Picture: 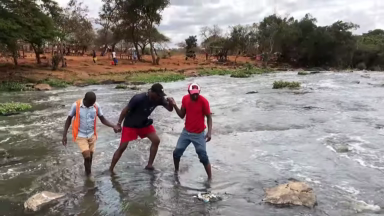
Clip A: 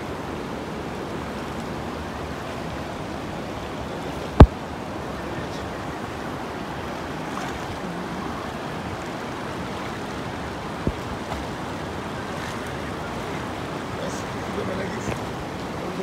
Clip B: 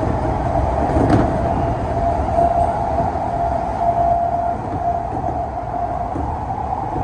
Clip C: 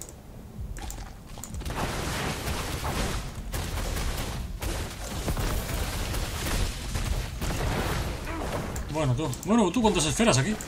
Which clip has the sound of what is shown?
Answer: A